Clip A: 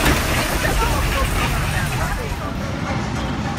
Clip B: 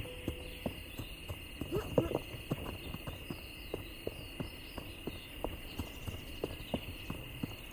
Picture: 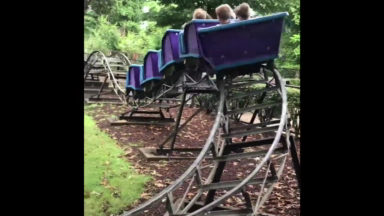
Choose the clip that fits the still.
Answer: A